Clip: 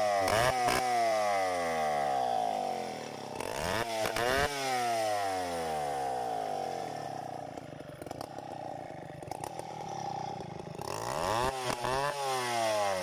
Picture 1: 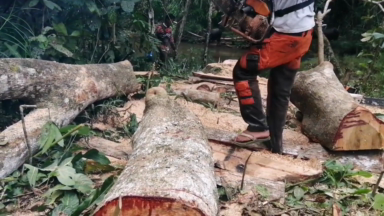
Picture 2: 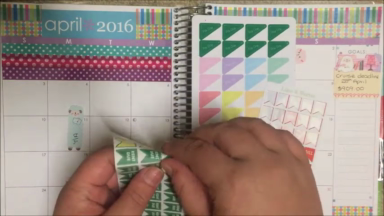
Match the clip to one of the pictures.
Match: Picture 1